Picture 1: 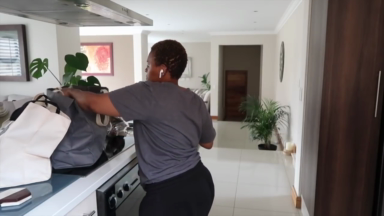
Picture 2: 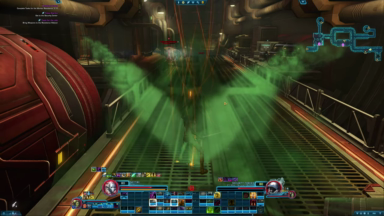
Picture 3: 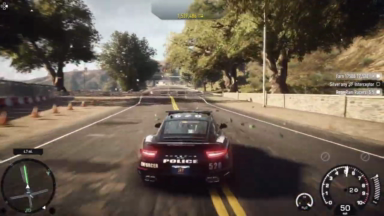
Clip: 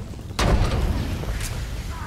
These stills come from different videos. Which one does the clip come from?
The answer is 2